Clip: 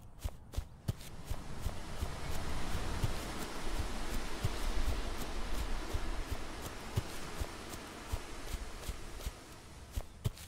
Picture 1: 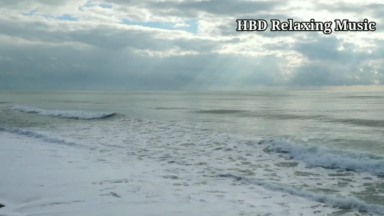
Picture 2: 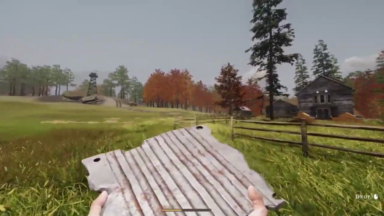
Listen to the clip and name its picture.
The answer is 2